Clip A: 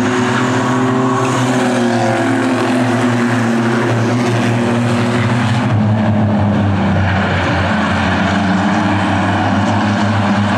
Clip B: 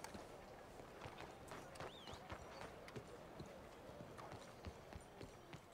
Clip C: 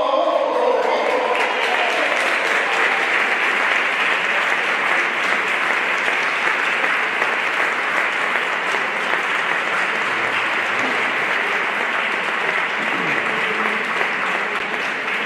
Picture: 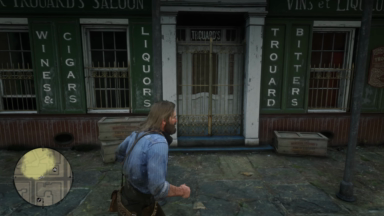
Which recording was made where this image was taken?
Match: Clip B